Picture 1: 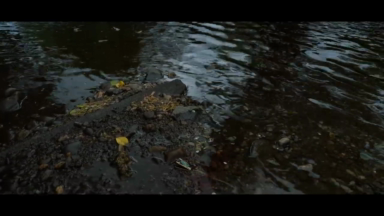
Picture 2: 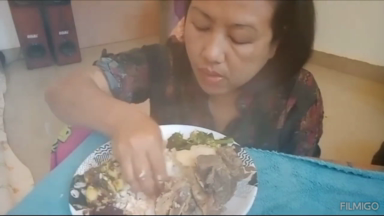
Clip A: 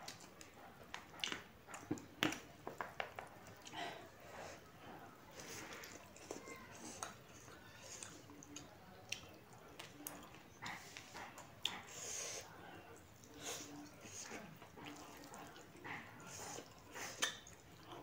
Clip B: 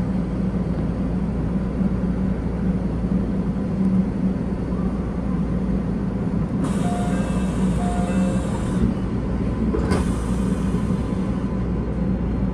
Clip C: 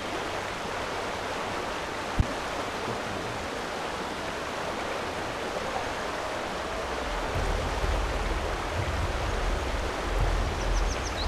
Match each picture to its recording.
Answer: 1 C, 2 A